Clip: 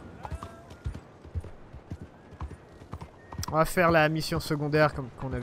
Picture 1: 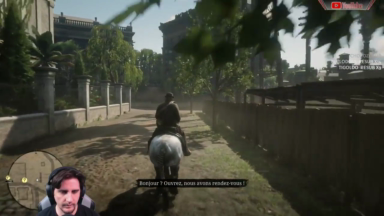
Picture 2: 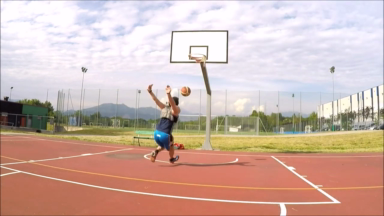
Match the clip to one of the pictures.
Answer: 1